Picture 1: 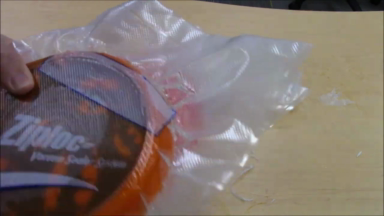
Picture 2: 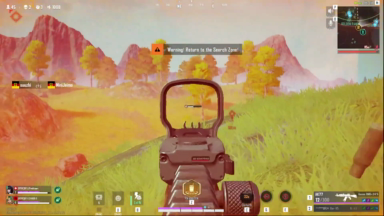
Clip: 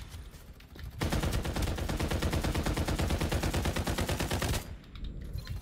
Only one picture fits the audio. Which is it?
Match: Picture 2